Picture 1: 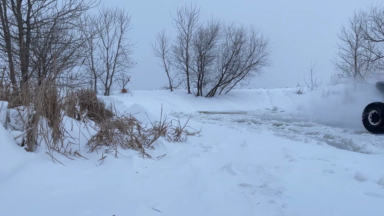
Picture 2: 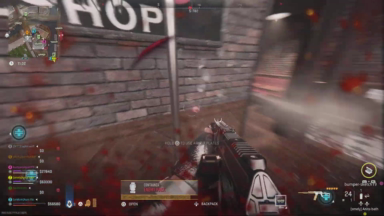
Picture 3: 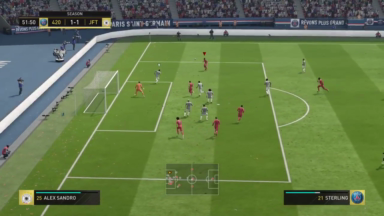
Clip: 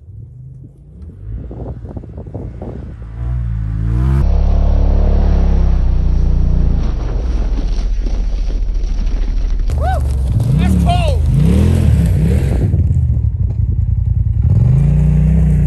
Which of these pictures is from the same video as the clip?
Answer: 1